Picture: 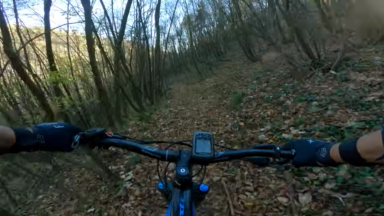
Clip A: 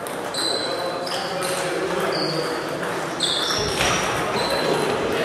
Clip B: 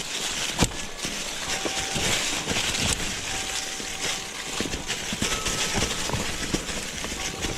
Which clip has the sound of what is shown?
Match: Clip B